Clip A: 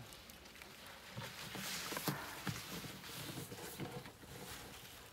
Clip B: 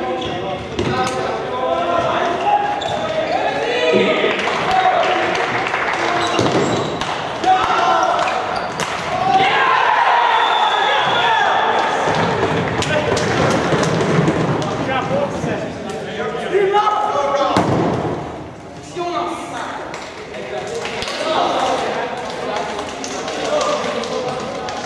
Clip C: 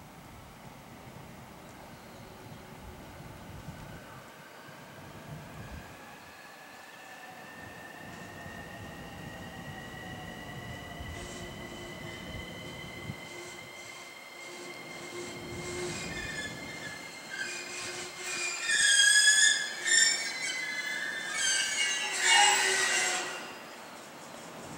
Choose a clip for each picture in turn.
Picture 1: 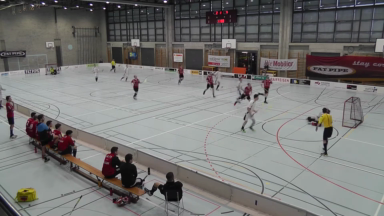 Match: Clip B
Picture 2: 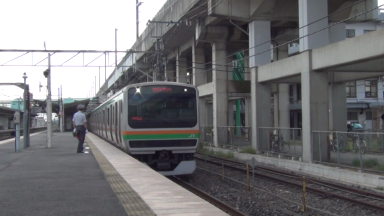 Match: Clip C